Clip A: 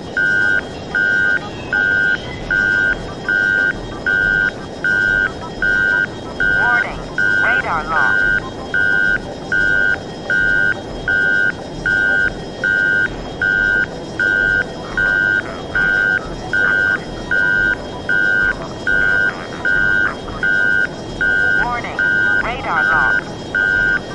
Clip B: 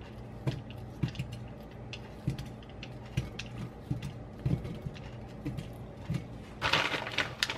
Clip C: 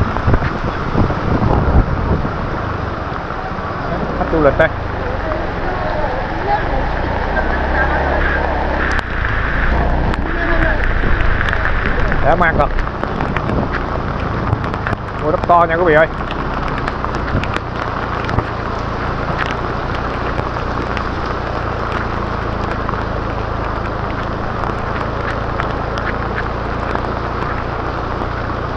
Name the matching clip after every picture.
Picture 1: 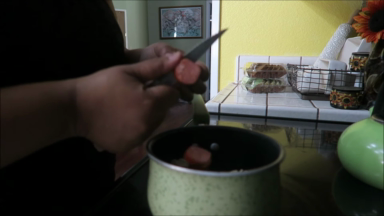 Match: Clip B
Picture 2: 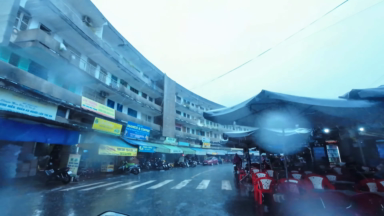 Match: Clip C